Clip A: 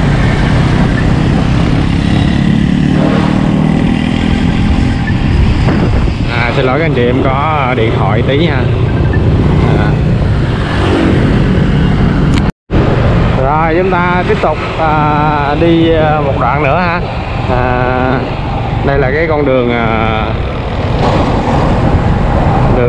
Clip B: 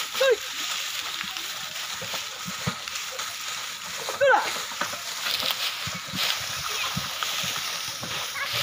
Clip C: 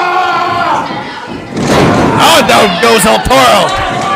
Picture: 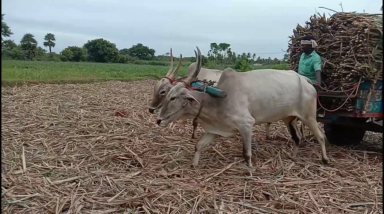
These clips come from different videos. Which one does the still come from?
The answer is B